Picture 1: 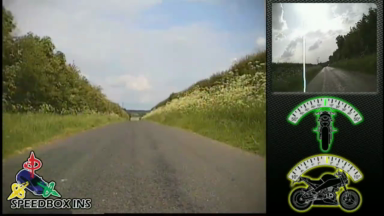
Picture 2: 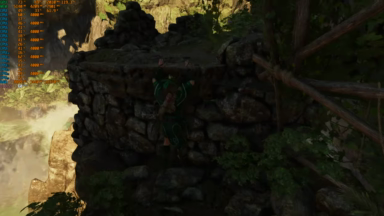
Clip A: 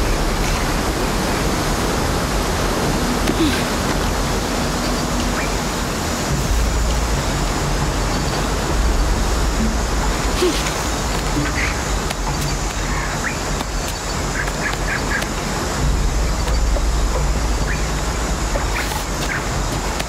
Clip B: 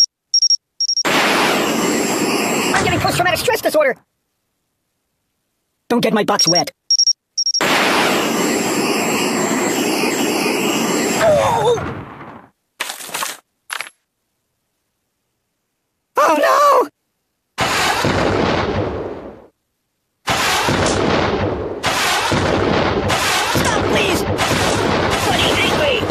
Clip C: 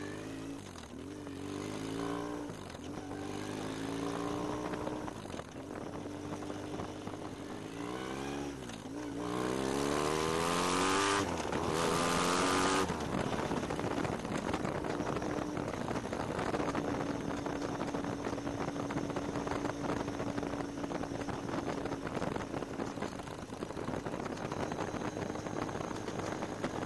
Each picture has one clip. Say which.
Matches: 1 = C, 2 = A